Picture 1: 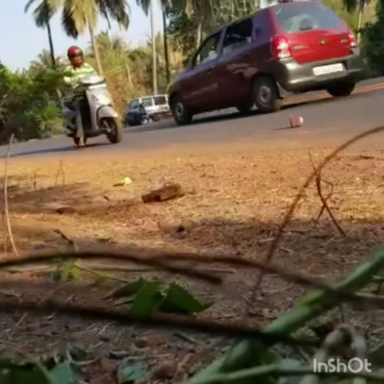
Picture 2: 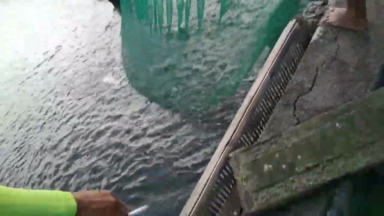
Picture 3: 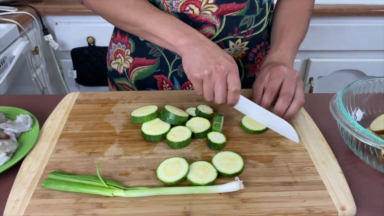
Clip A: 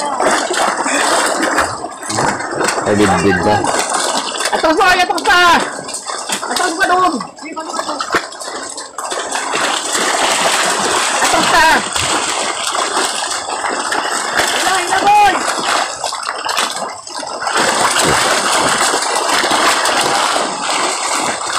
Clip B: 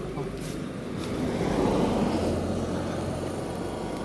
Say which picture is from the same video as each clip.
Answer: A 2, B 1